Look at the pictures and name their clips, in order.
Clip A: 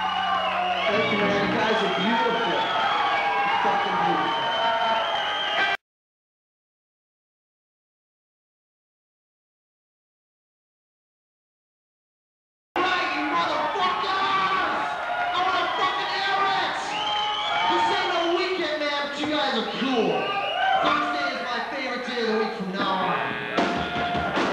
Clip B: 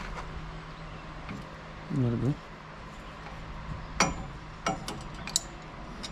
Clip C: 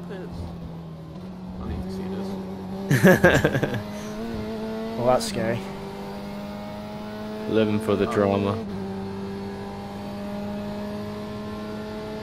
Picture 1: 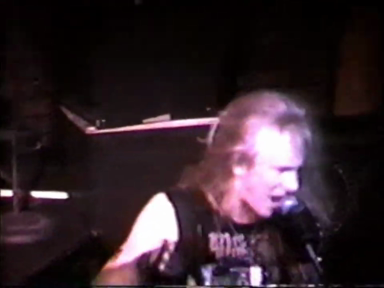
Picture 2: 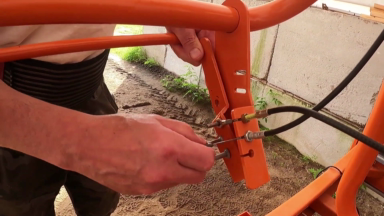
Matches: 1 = A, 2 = B